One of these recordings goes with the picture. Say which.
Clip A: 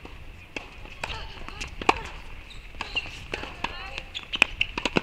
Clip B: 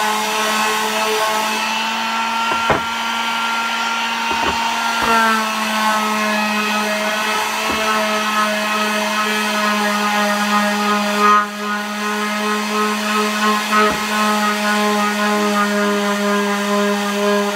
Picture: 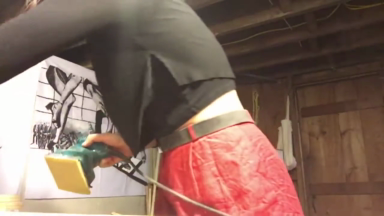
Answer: B